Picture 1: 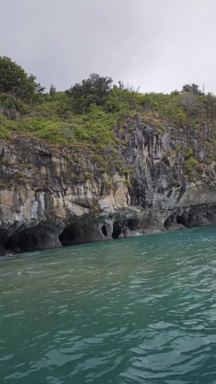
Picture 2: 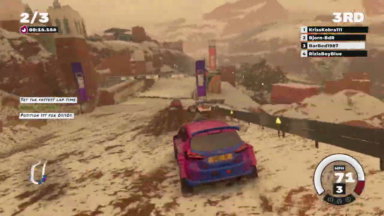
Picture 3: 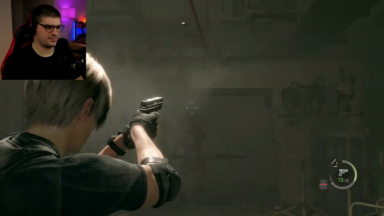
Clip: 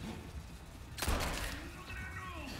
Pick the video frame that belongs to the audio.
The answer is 3